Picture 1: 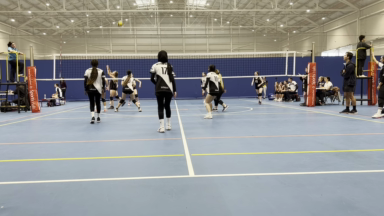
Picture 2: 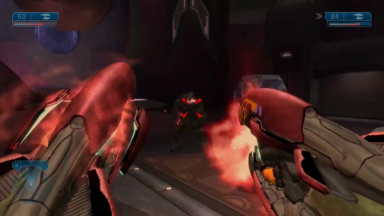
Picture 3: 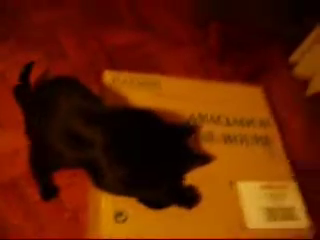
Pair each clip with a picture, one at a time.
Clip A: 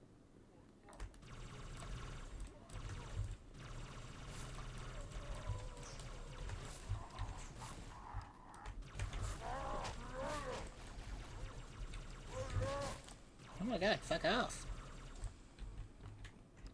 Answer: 2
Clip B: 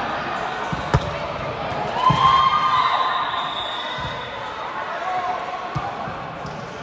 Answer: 1